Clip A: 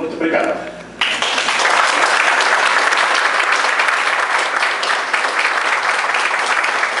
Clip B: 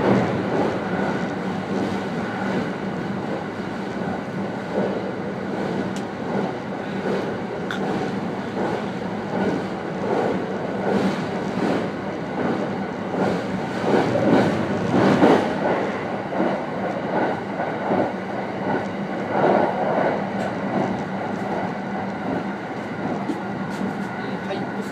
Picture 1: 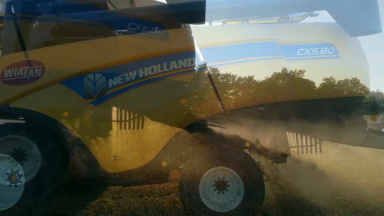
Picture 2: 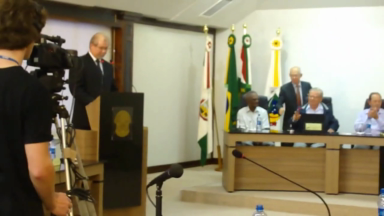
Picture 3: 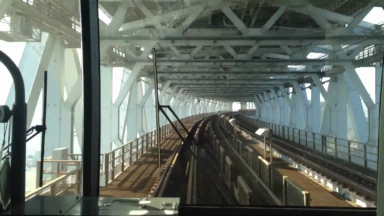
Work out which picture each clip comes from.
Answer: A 2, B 3